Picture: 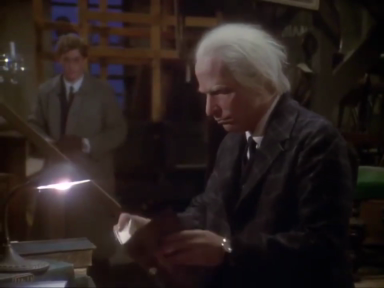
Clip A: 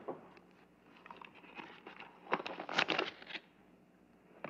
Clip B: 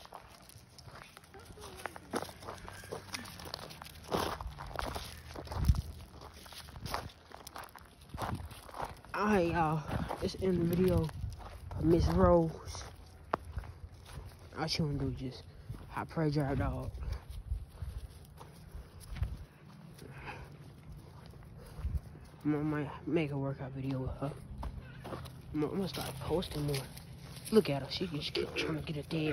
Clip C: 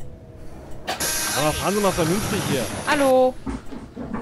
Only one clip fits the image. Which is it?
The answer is A